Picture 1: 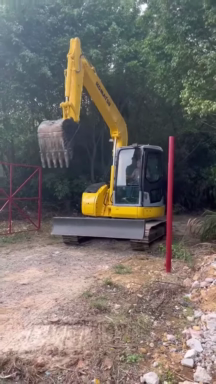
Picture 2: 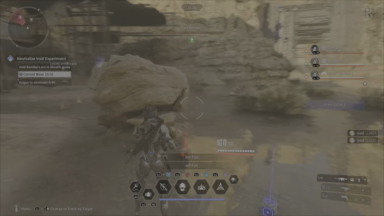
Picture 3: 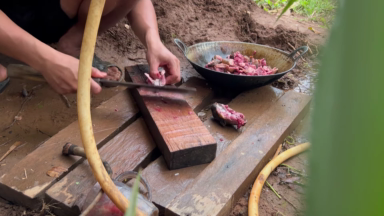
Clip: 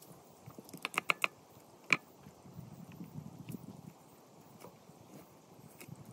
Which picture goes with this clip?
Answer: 3